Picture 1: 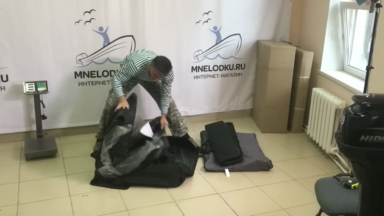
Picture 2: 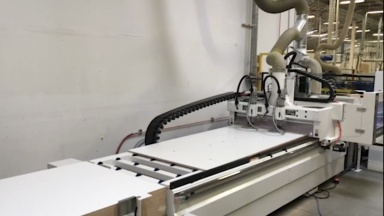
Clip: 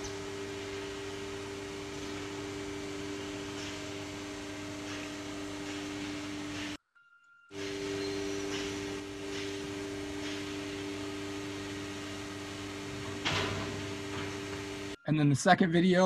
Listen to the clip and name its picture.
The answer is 2